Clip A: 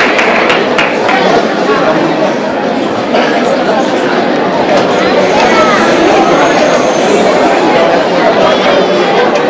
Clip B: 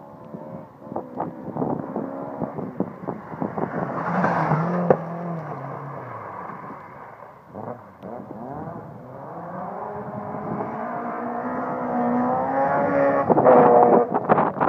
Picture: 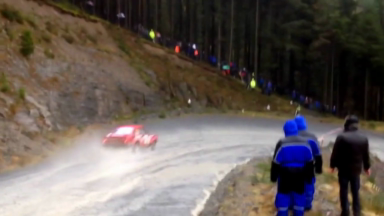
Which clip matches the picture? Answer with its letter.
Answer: B